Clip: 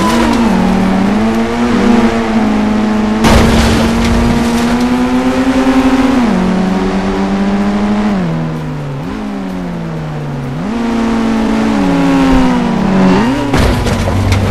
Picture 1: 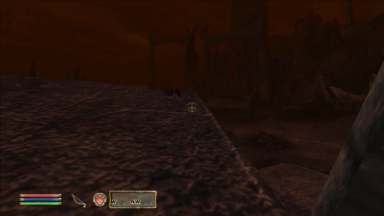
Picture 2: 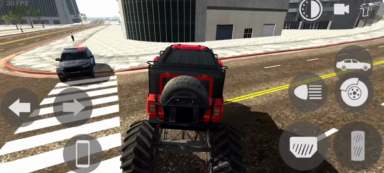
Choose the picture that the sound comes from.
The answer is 2